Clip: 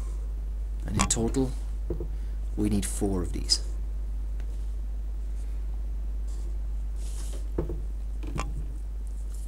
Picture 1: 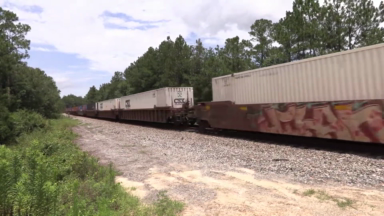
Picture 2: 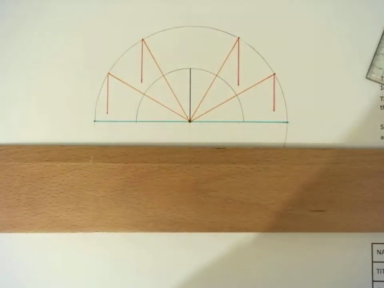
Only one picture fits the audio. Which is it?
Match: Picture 2